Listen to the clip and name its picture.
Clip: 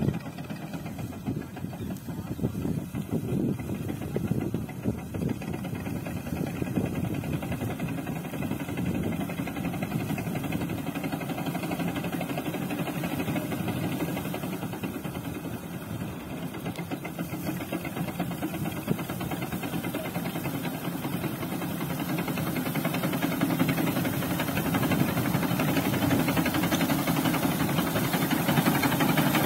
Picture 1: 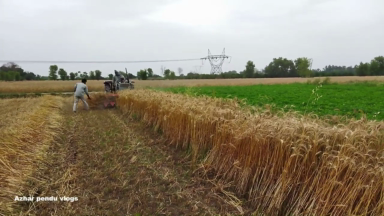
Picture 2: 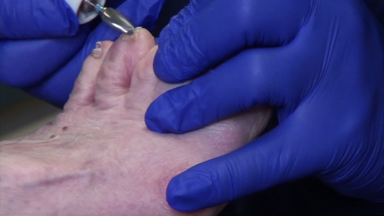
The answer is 1